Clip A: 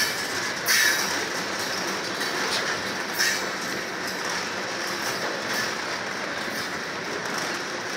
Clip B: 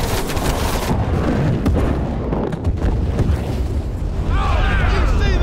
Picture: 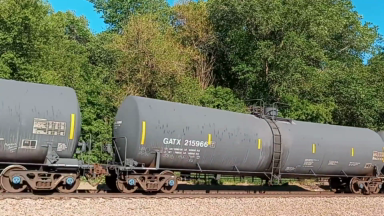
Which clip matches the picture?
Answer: A